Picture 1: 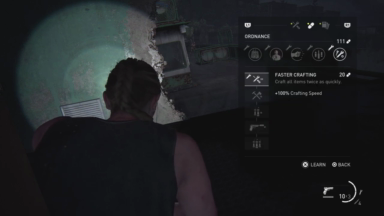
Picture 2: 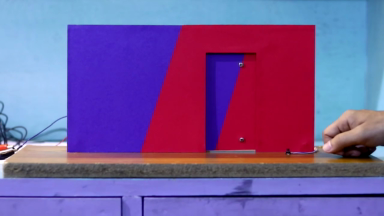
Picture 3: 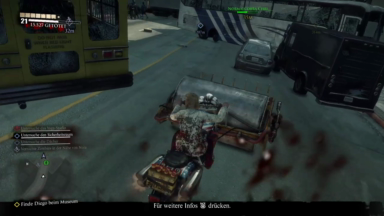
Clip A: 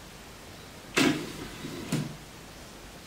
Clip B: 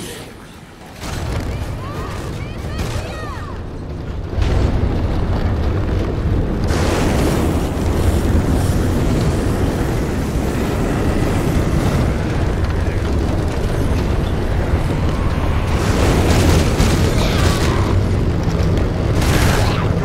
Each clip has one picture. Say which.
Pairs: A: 2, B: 3